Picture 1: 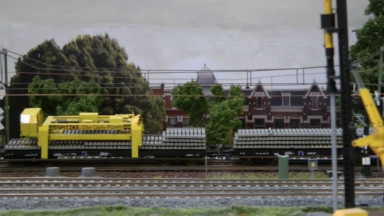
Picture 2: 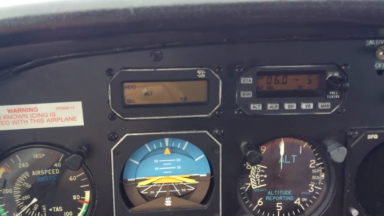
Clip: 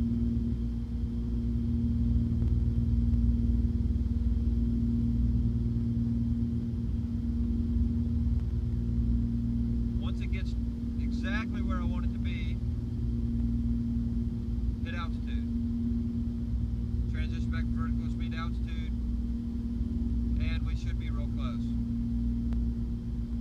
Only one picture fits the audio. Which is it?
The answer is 2